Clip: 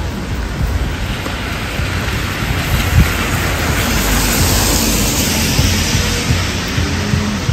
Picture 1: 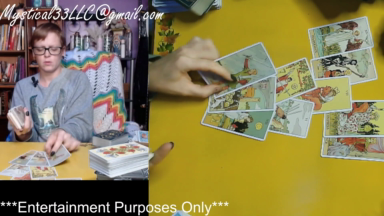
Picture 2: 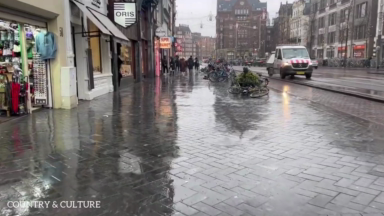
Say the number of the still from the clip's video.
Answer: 2